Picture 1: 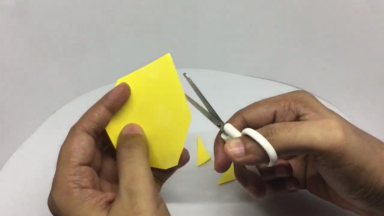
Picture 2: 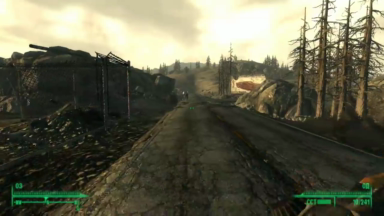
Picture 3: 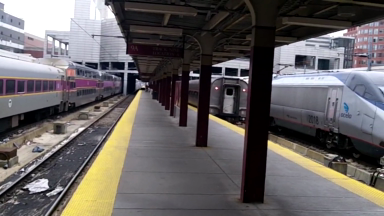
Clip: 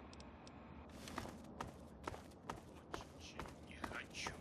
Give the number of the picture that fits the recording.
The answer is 2